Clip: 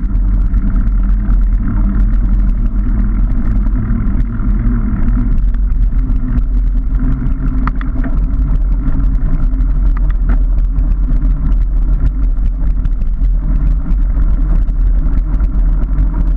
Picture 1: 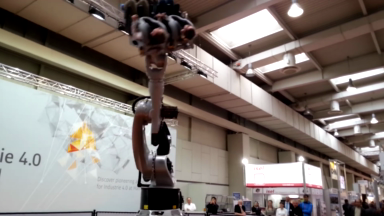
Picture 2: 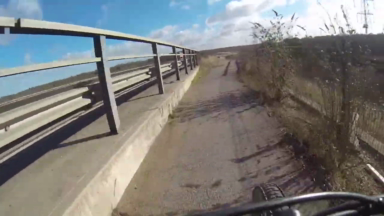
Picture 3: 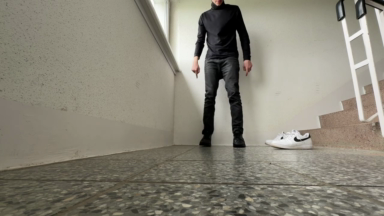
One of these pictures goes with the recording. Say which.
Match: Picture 2